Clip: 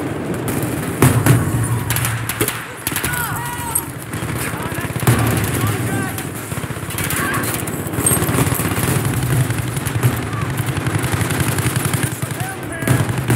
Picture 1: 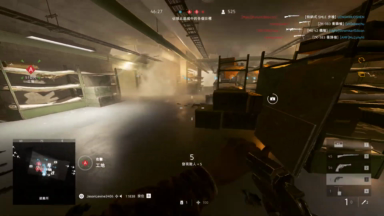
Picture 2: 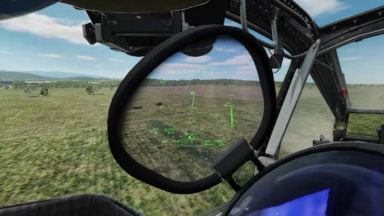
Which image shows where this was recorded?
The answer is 1